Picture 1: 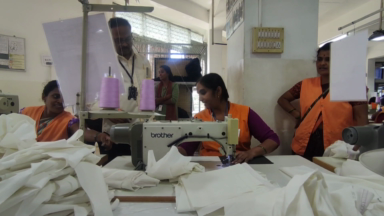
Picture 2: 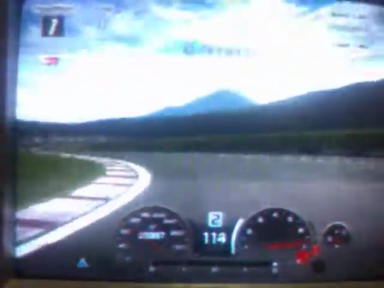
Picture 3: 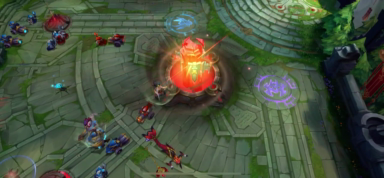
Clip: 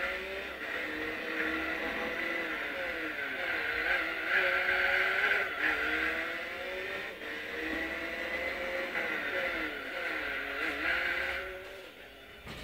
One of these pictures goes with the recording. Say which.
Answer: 2